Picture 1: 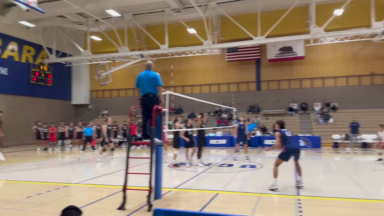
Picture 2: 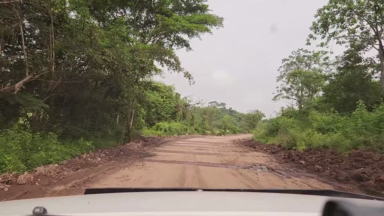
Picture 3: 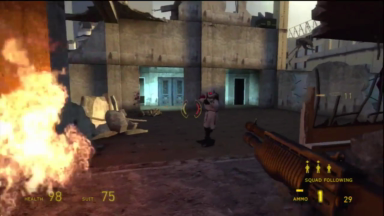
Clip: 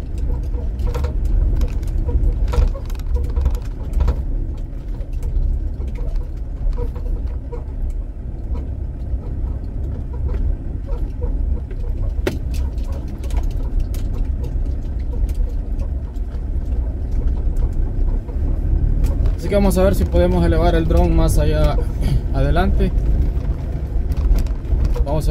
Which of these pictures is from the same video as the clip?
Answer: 2